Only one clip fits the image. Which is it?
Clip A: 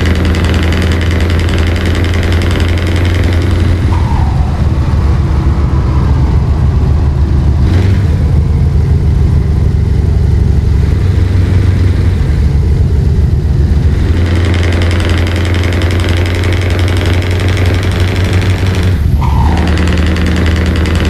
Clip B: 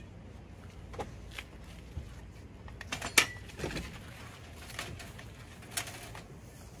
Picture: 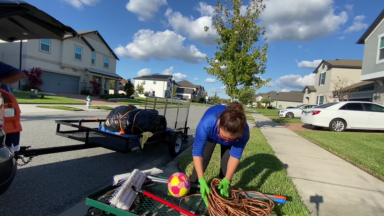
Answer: B